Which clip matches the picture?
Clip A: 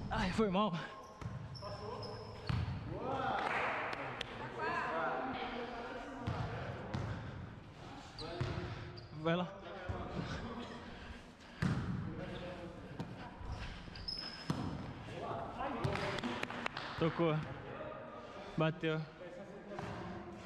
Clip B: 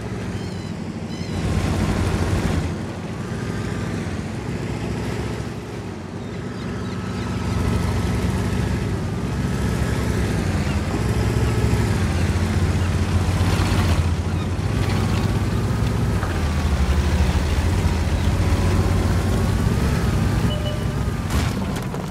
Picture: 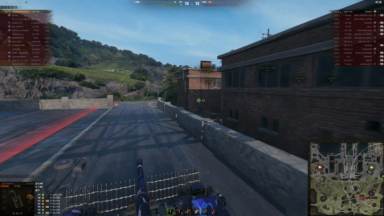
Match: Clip B